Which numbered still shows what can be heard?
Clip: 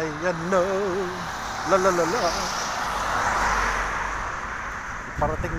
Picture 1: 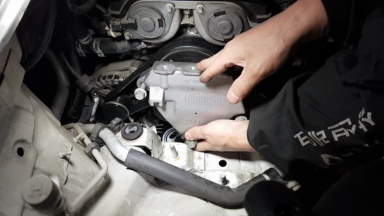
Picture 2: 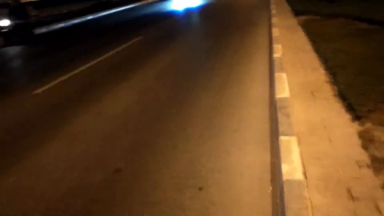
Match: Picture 2